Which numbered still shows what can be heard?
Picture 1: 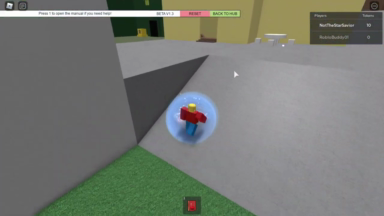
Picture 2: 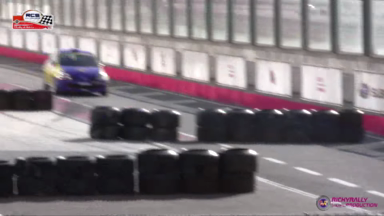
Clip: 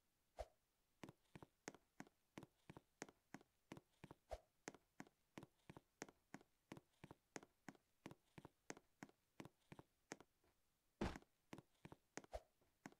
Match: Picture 1